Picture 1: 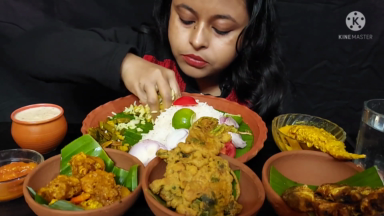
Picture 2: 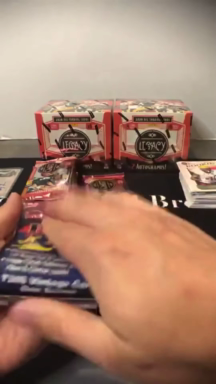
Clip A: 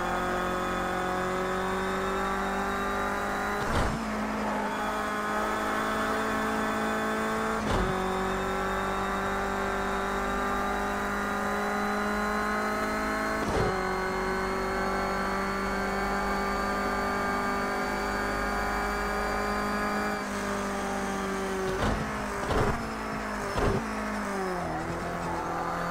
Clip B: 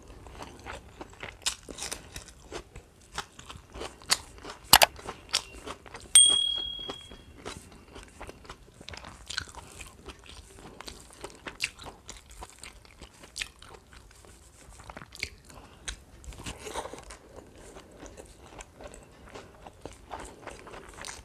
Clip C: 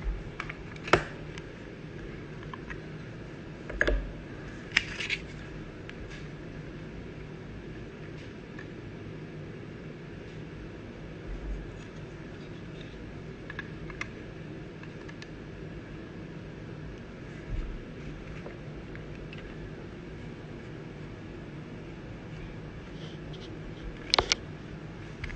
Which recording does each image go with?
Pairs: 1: B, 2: C